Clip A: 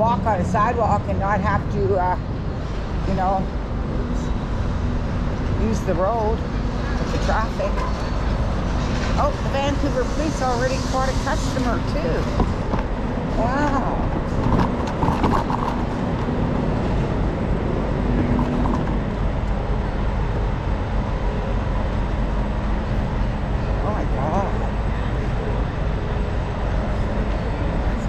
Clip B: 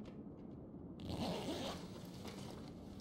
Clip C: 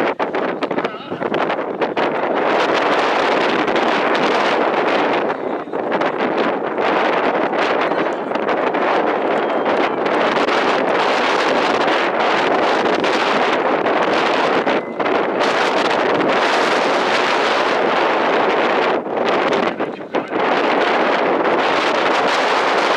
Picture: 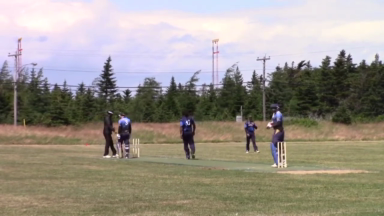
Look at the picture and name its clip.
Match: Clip C